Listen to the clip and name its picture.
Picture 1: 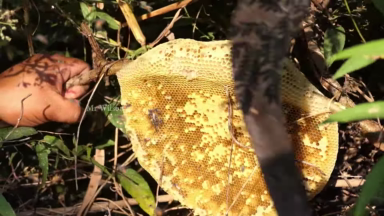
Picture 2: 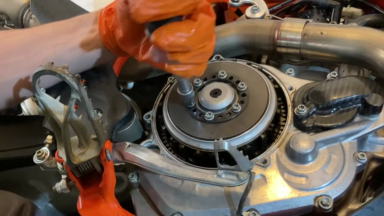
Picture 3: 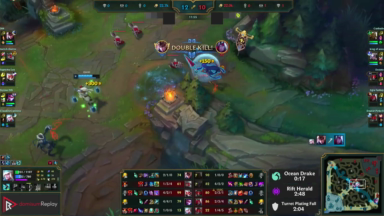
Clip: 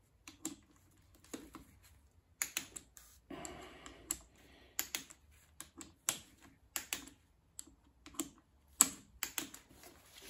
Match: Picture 2